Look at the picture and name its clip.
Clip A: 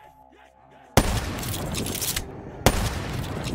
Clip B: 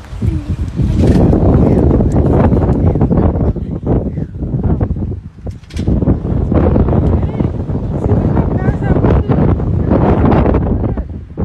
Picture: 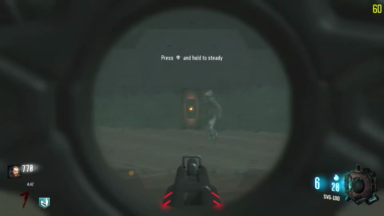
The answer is A